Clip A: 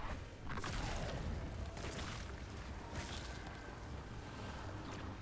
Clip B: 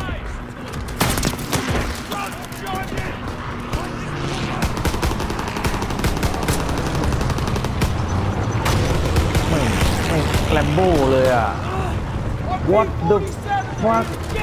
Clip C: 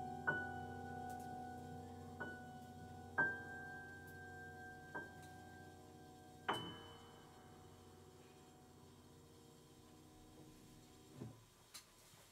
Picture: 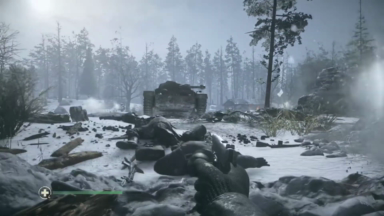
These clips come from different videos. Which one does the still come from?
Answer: B